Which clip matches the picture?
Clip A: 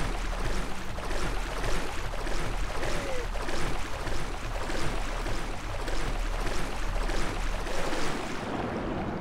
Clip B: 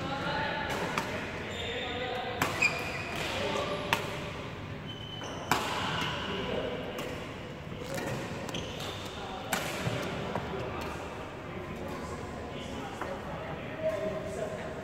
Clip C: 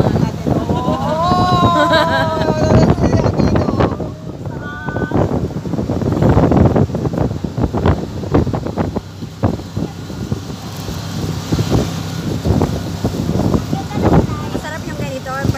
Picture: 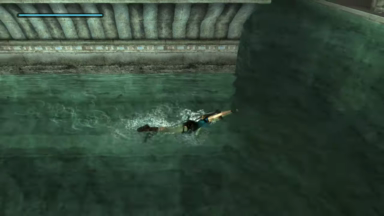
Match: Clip A